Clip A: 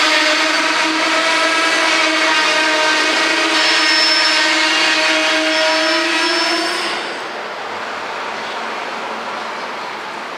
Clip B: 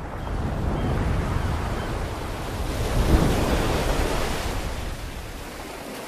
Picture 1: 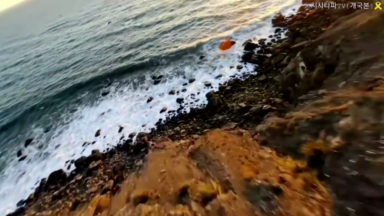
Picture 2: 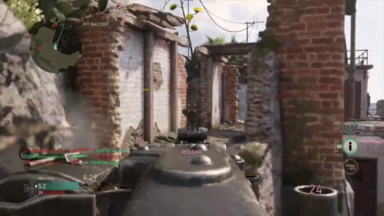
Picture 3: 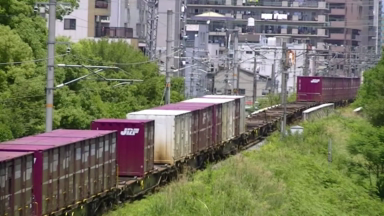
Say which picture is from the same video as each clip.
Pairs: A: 3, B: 1